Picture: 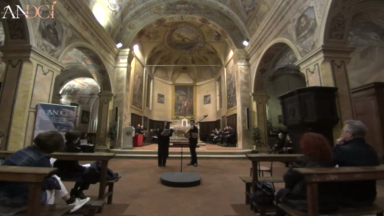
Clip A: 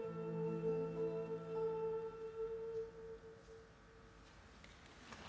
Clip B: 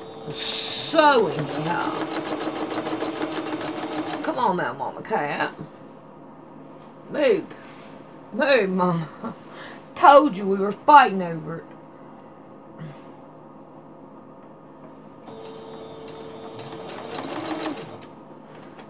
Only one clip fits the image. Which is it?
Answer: A